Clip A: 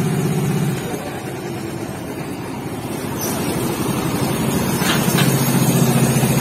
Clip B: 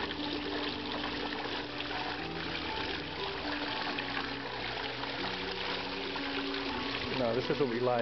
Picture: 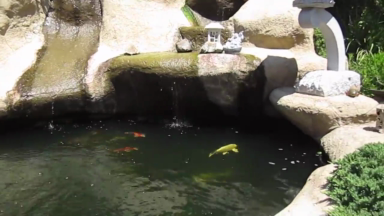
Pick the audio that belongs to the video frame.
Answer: B